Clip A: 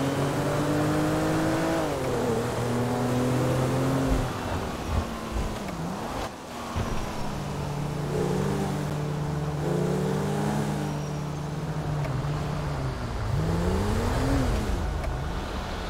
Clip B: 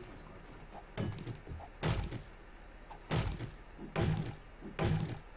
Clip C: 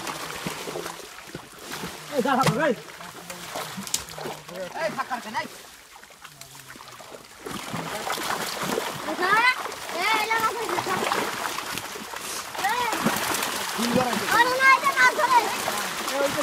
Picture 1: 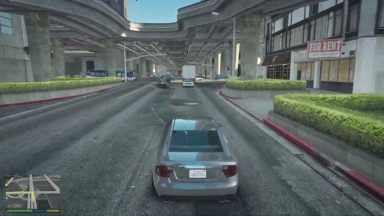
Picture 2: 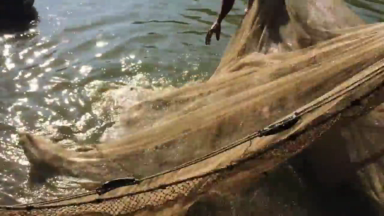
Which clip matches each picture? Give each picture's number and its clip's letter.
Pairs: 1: A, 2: C